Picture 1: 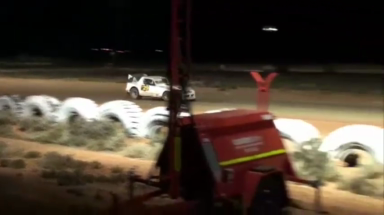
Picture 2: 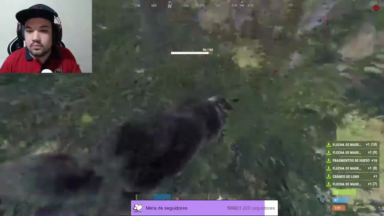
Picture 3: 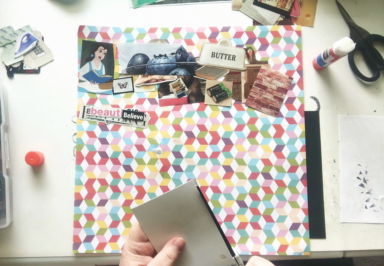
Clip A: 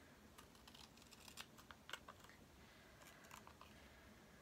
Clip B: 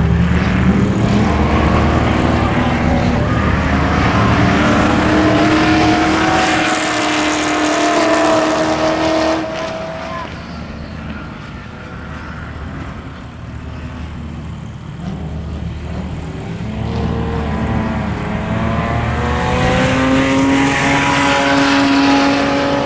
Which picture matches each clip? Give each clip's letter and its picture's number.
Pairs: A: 3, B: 1